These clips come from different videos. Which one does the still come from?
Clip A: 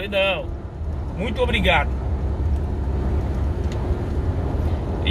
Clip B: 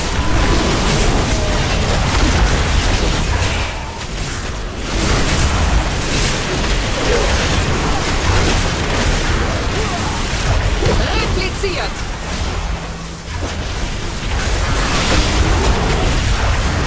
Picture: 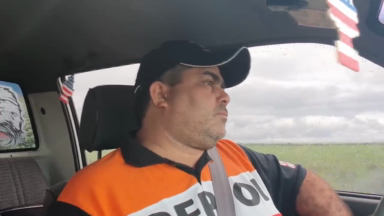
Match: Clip A